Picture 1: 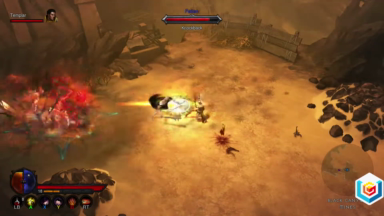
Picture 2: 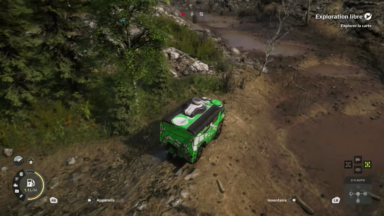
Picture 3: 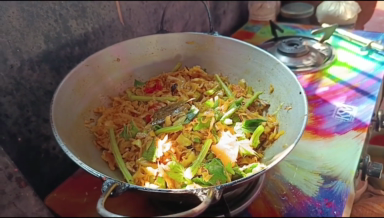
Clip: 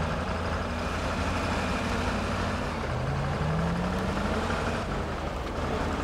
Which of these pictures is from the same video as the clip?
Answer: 2